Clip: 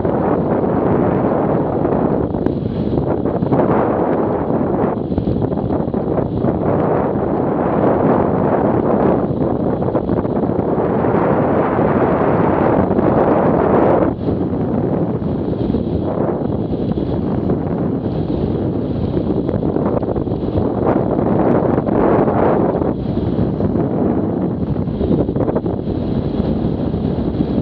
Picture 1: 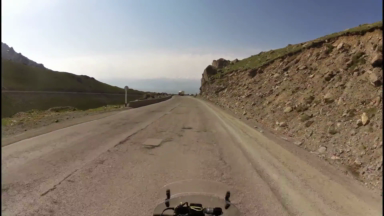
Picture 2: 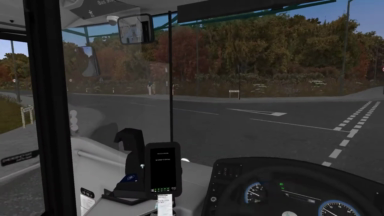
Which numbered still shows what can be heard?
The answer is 1